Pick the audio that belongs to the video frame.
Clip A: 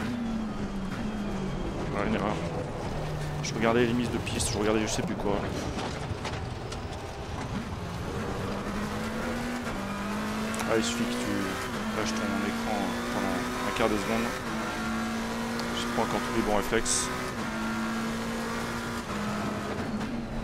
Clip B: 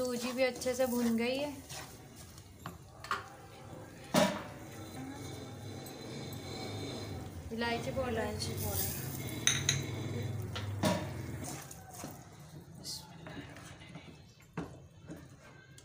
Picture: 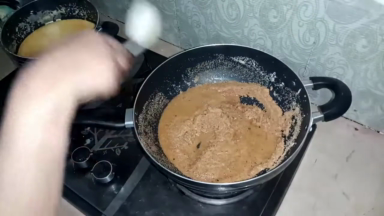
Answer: B